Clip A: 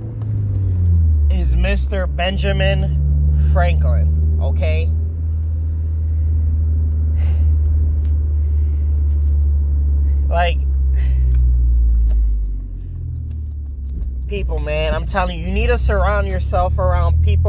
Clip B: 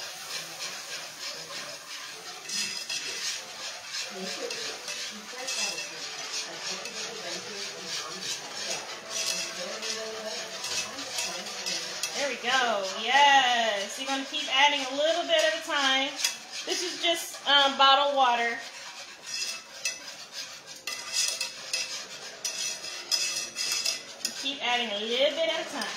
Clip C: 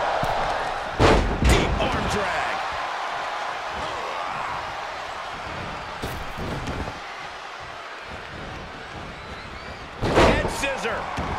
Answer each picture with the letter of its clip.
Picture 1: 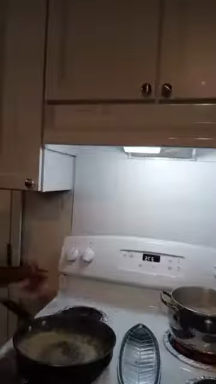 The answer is B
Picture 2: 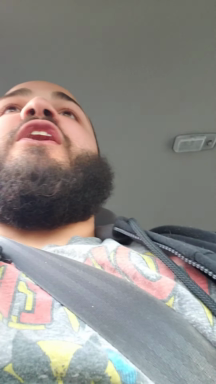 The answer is A